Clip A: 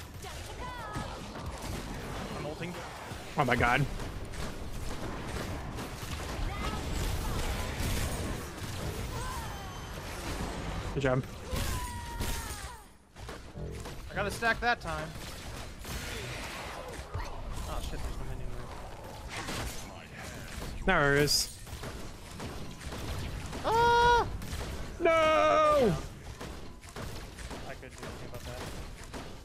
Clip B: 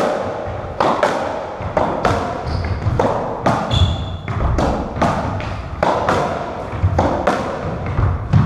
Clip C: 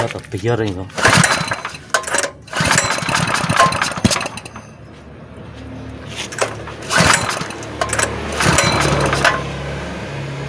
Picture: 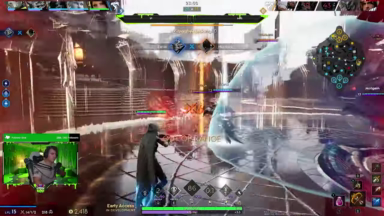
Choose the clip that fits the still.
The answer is A